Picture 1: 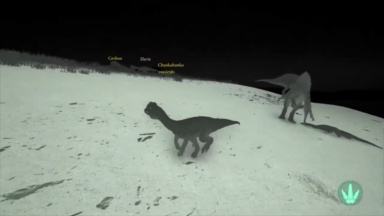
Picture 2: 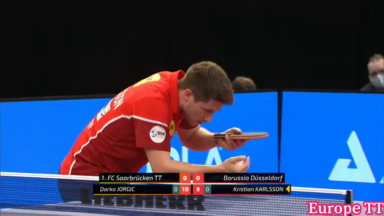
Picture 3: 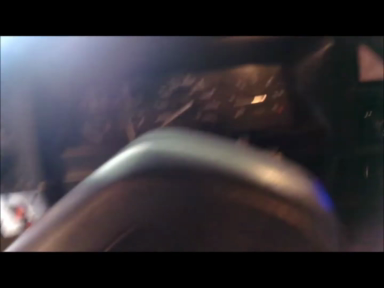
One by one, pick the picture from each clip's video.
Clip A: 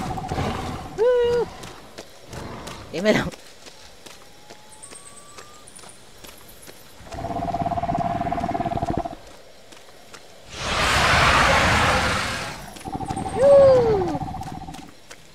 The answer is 1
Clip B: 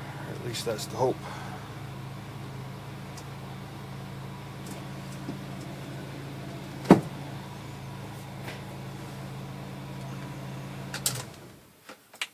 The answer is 3